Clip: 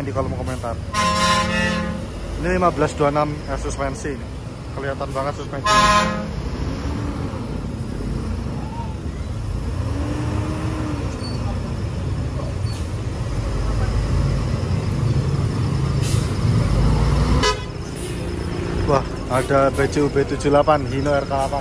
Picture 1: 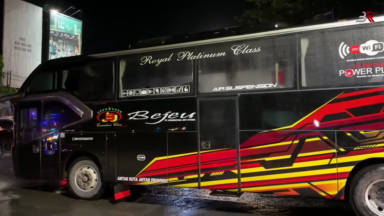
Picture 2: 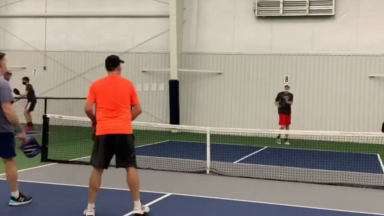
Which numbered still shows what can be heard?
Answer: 1